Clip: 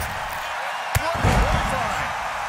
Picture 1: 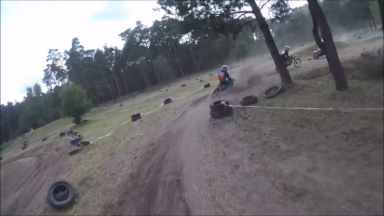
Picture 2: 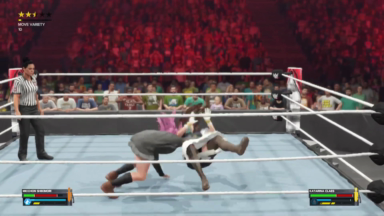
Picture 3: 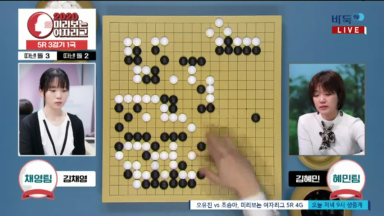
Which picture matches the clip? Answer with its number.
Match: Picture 2